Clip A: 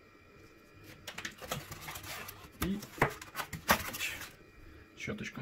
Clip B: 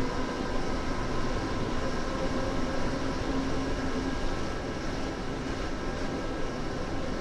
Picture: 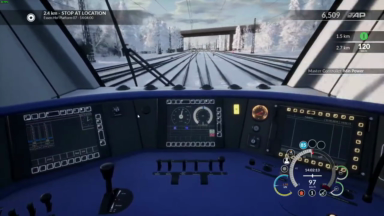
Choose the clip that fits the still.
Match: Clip B